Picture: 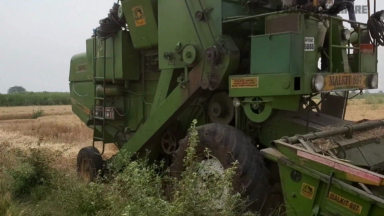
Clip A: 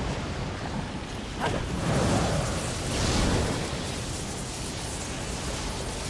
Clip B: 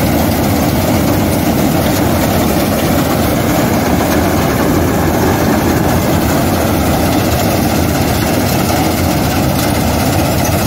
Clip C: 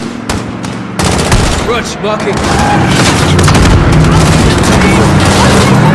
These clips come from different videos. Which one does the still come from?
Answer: B